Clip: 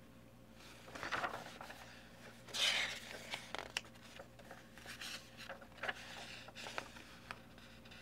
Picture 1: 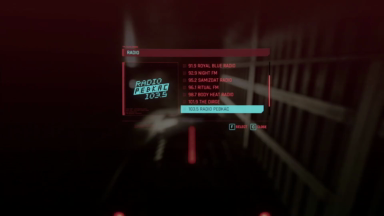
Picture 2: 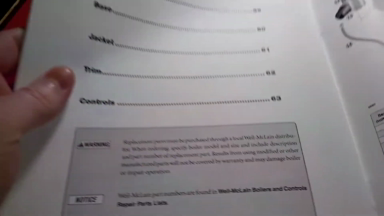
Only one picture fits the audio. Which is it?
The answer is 2